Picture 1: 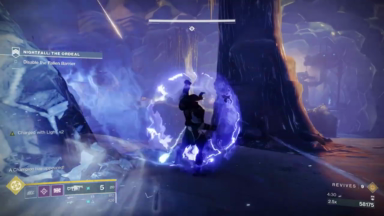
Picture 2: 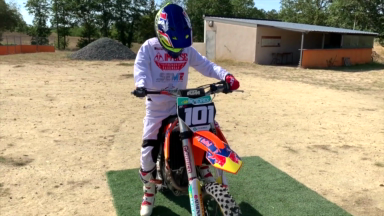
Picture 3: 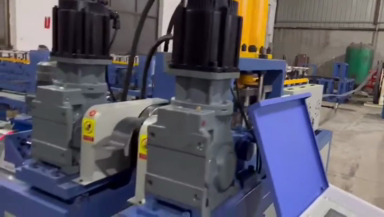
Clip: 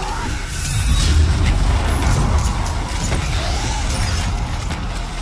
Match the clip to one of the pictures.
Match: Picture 1